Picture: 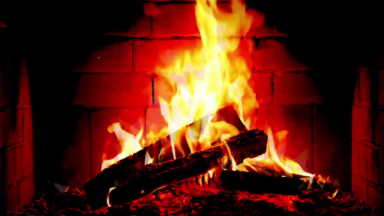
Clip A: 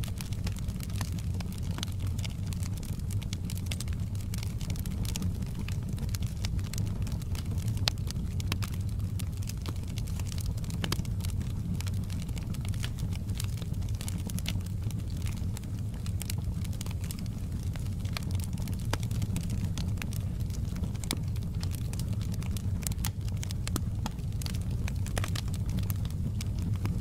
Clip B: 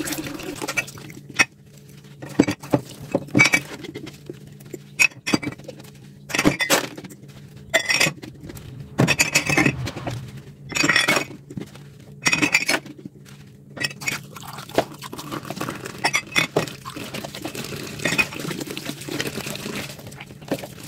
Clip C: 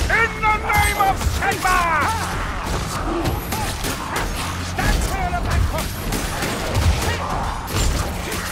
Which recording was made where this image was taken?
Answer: A